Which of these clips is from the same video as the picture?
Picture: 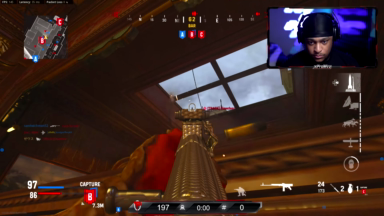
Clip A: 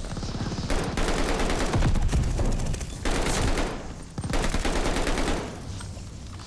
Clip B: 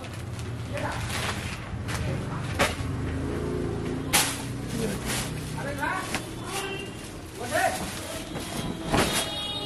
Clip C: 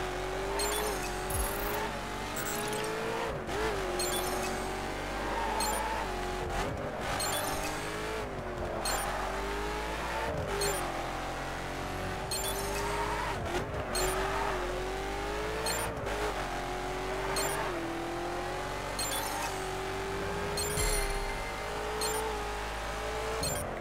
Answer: A